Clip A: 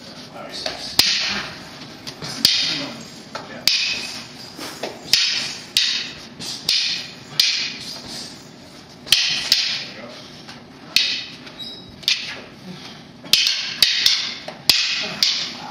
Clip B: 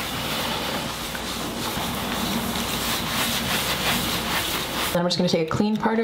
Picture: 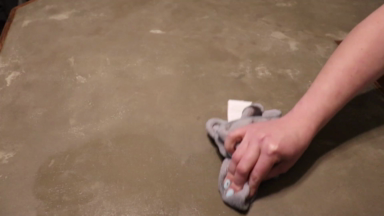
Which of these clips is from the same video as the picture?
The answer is B